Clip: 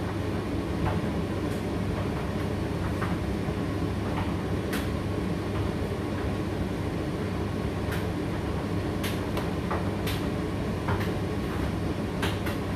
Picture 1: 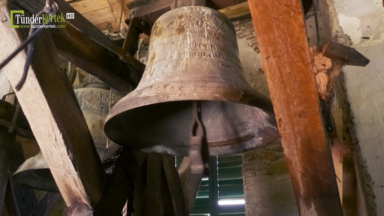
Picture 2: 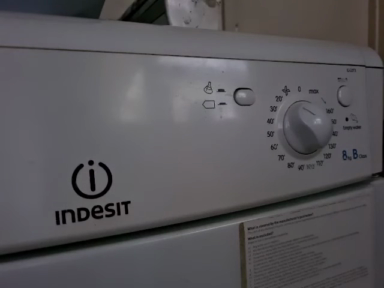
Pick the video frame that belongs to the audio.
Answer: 2